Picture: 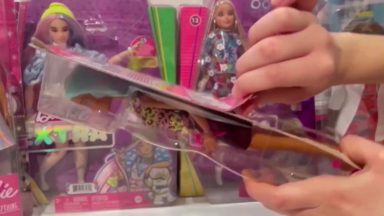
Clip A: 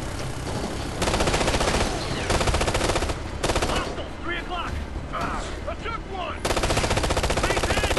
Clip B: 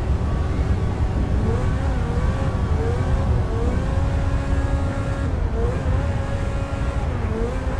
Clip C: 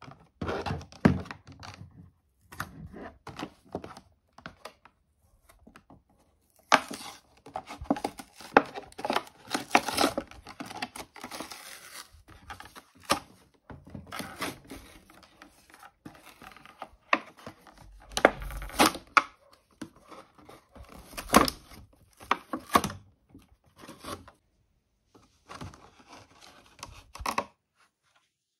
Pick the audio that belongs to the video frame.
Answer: C